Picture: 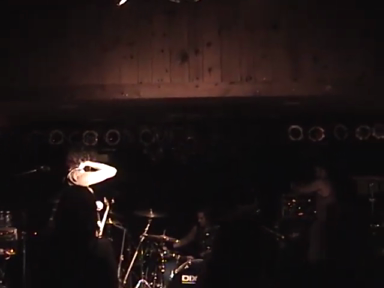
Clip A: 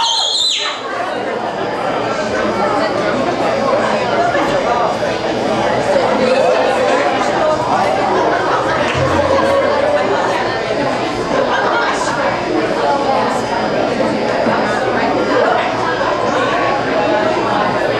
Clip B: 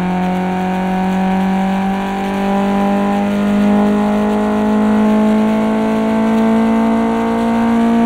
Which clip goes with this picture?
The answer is A